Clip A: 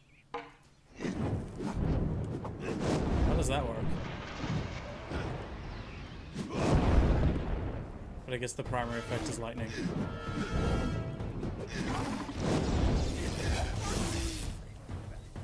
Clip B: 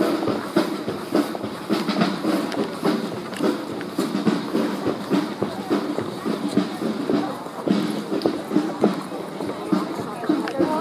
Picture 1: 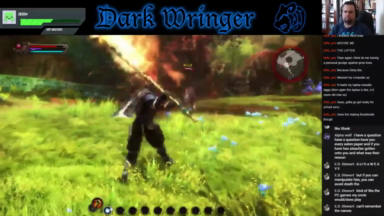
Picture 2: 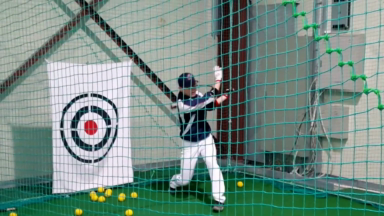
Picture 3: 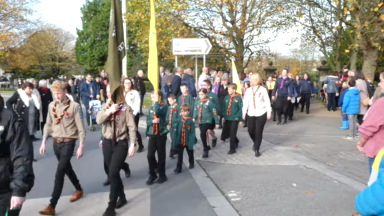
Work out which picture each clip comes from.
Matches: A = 1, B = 3